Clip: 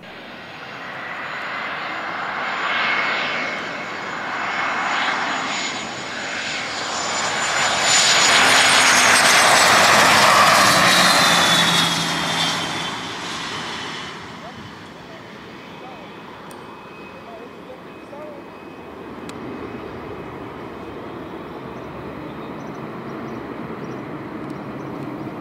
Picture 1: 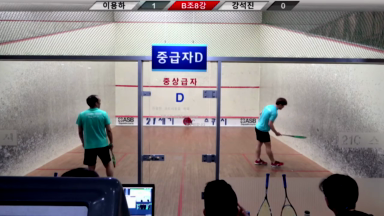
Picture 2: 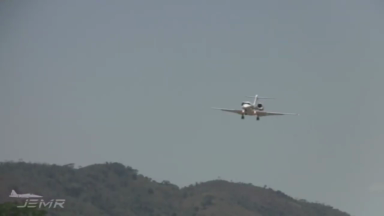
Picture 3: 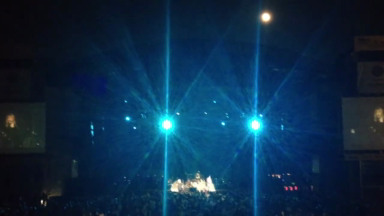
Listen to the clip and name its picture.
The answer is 2